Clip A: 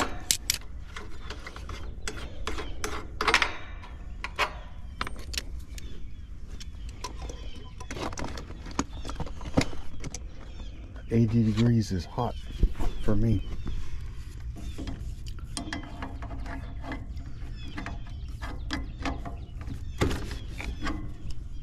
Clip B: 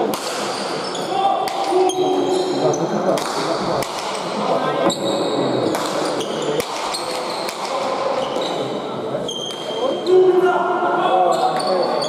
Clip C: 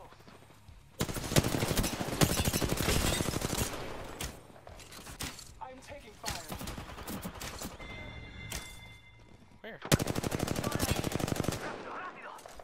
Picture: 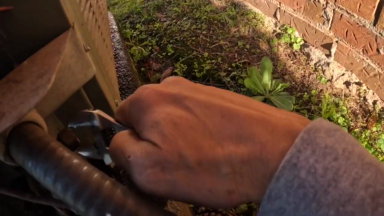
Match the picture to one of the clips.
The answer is A